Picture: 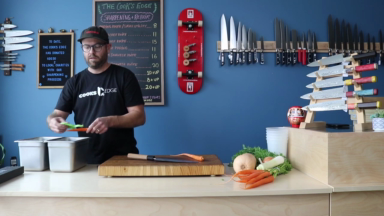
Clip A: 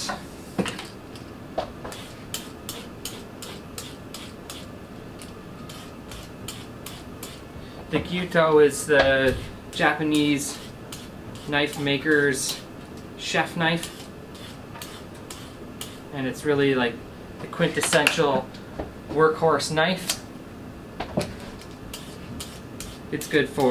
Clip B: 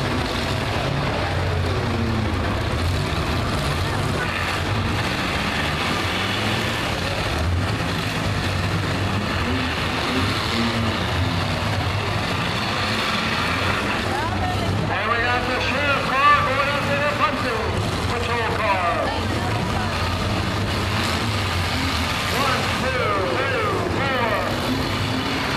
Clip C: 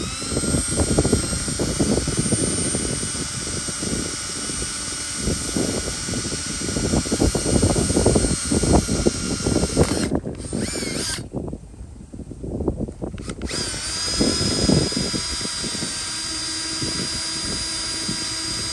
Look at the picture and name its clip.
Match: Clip A